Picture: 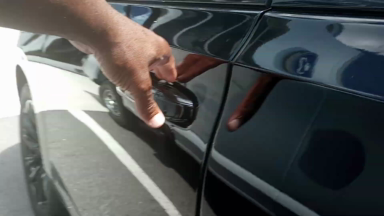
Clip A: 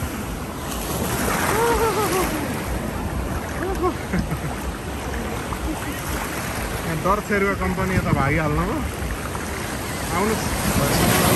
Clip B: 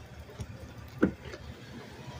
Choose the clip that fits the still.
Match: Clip B